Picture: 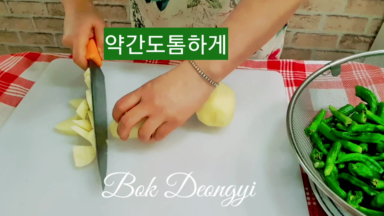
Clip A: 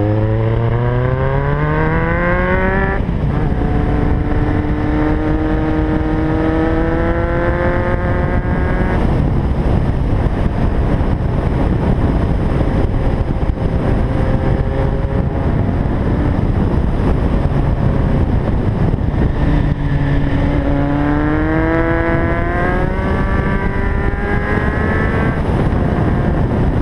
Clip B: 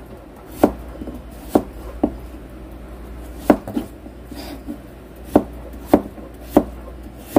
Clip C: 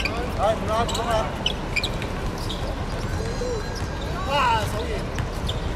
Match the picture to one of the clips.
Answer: B